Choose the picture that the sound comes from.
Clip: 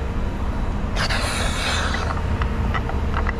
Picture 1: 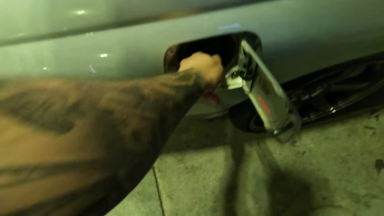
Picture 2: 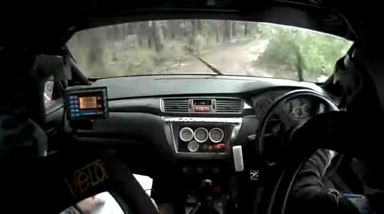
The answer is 1